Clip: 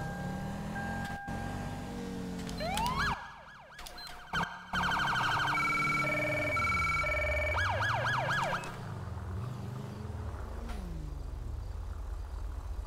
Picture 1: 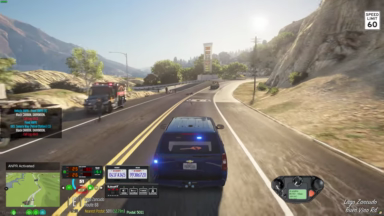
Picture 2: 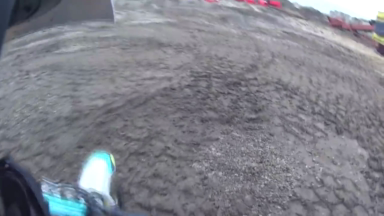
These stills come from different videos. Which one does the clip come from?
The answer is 1